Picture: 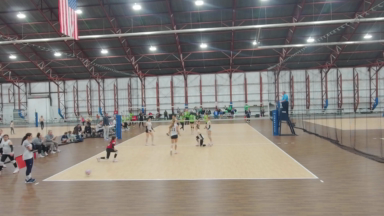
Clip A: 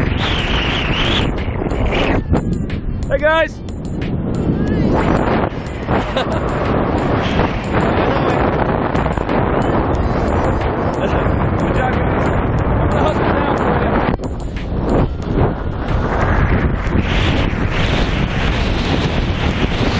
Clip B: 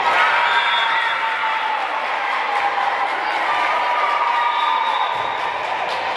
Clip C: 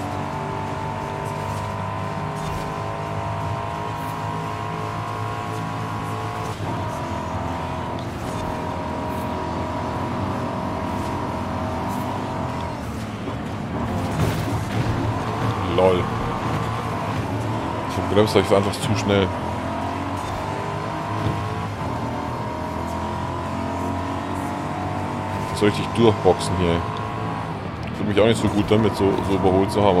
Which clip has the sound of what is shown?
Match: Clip B